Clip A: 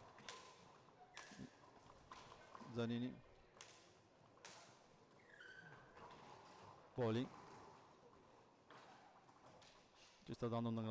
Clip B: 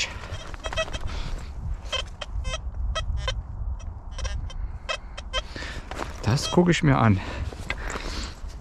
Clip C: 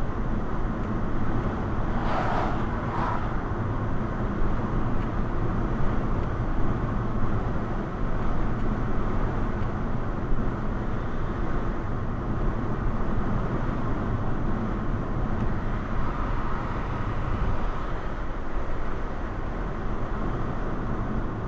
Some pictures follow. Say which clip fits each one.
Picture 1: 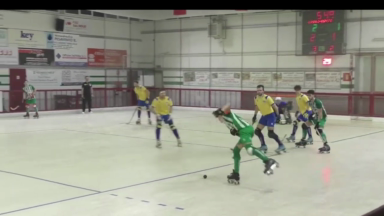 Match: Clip A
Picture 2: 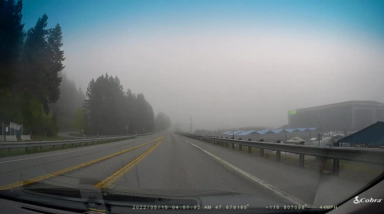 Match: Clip C